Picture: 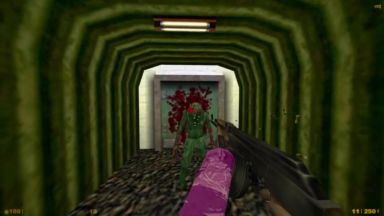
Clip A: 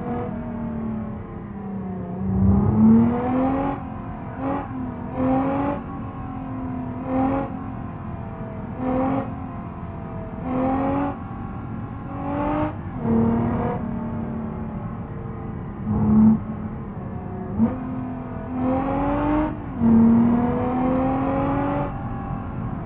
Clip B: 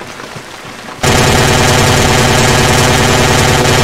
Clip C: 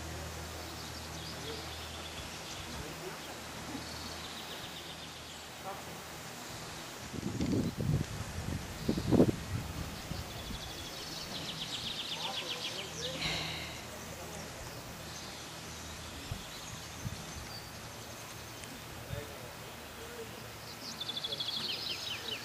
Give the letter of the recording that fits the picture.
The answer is B